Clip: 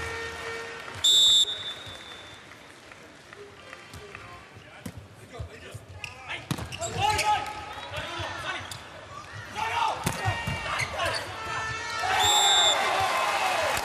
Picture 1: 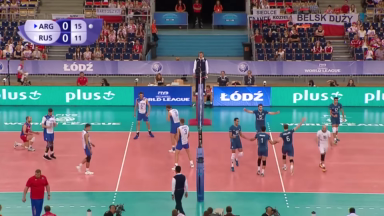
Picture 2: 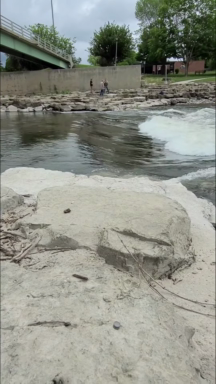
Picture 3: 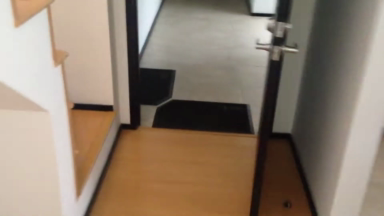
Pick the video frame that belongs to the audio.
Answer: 1